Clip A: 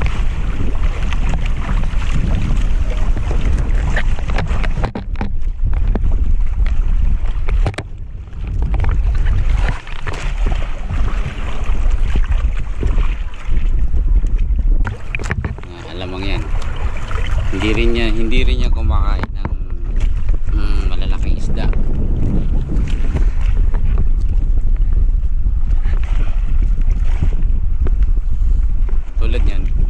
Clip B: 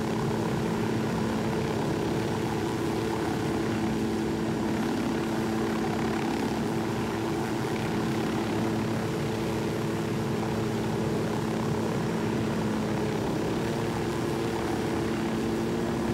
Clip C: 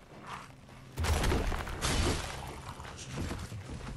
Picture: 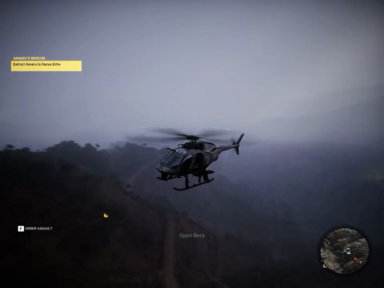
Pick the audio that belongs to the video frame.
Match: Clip B